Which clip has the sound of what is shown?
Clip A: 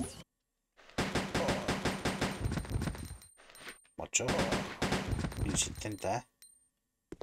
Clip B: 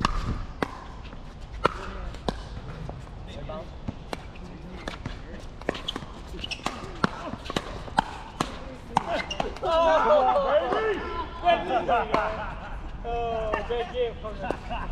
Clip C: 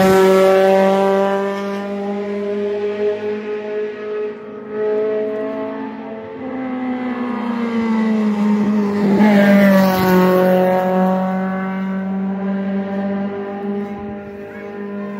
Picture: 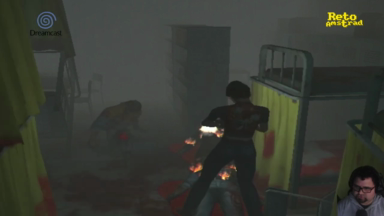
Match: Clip A